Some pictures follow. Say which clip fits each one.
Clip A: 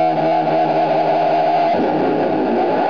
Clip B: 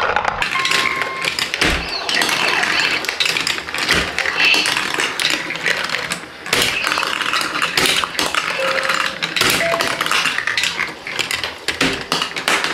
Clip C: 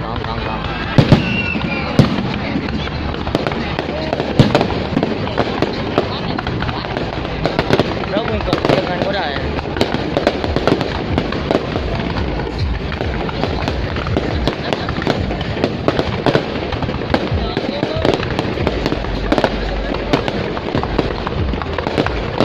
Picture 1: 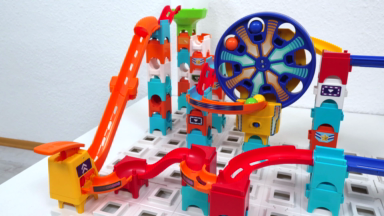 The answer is B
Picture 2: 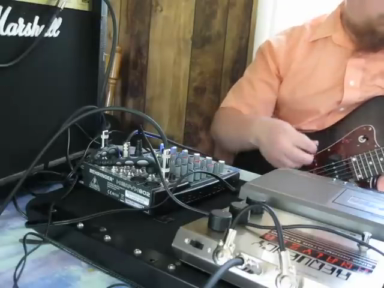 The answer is A